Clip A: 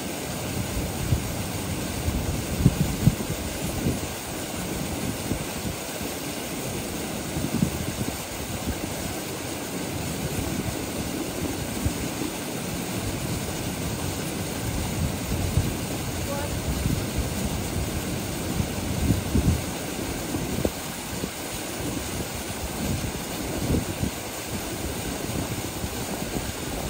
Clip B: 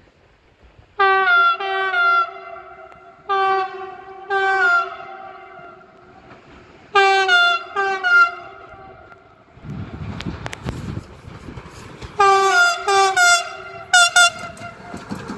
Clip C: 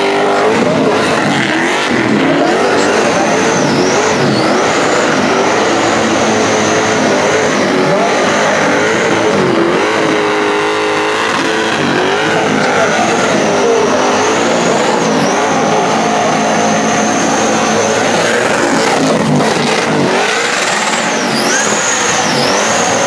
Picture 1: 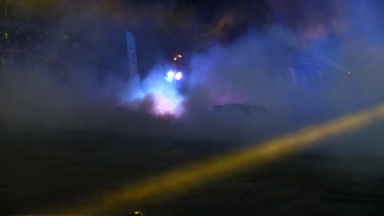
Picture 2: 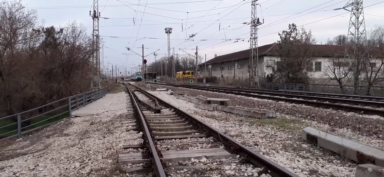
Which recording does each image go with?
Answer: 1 C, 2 B